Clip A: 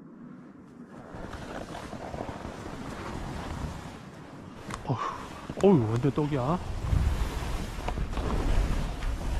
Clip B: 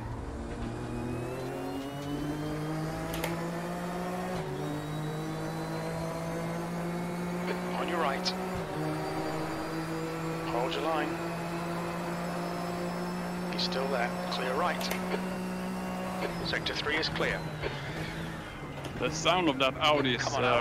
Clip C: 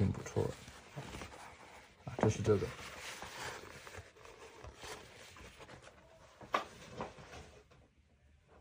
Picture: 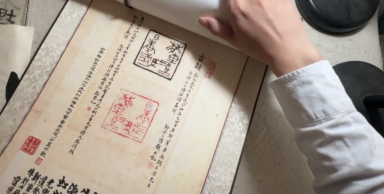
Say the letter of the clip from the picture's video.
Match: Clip C